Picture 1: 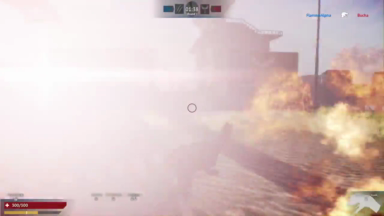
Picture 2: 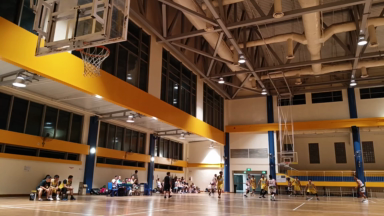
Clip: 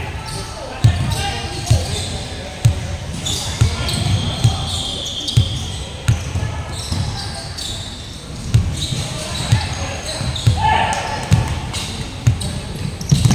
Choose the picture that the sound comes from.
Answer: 2